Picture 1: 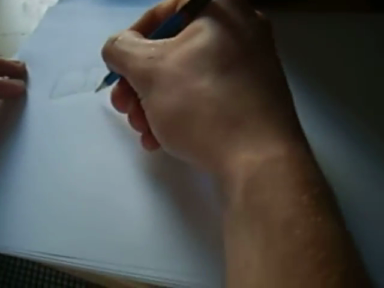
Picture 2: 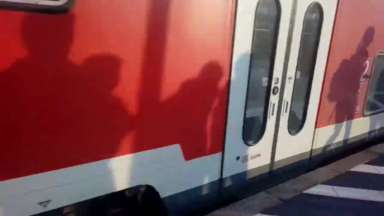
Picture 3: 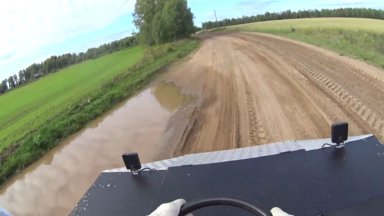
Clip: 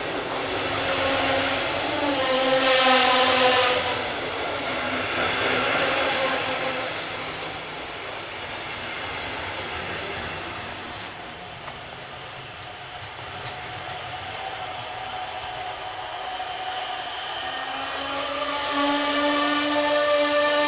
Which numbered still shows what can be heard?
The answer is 2